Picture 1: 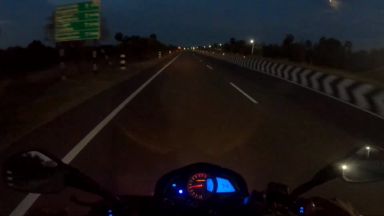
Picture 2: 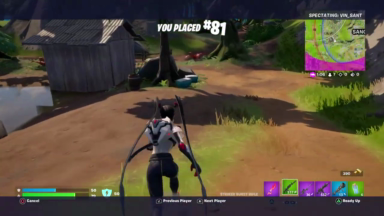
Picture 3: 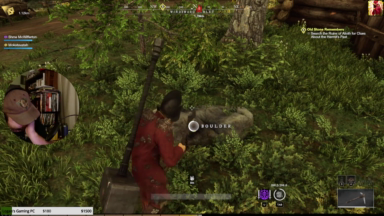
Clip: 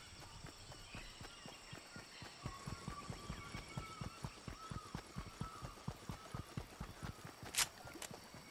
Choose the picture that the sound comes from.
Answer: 2